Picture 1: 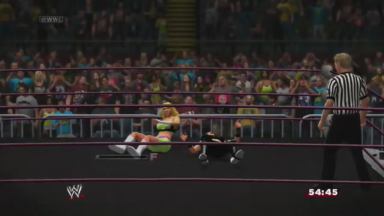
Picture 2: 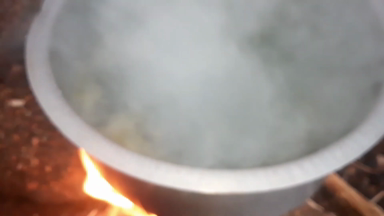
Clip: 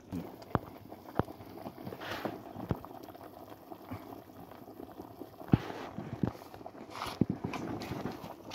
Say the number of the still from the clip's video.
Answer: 2